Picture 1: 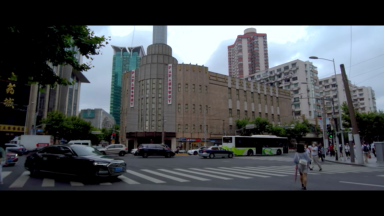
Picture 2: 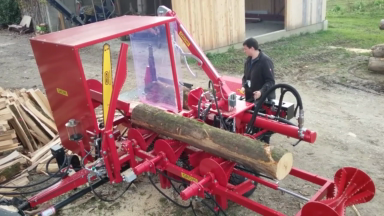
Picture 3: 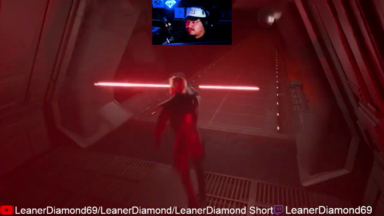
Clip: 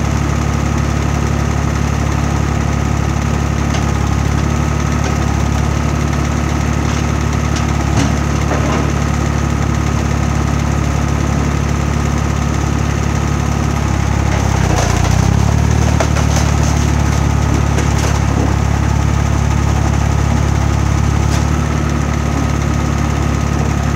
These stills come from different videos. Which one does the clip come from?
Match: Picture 2